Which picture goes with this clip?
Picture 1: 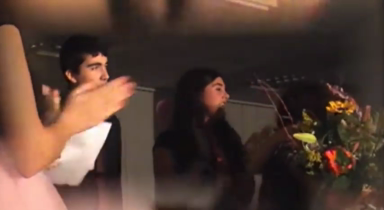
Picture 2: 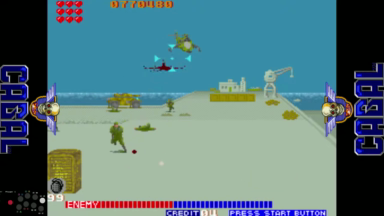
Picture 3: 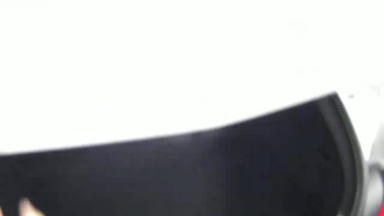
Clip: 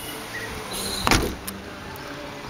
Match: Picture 3